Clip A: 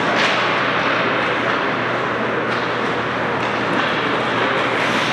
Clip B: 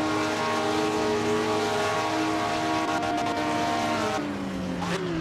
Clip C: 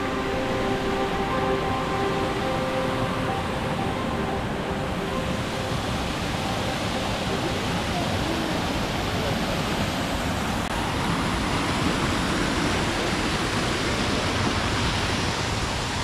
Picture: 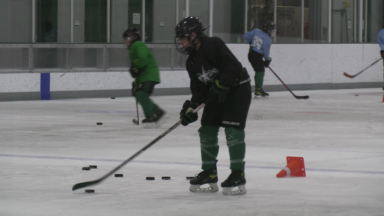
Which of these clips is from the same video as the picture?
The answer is A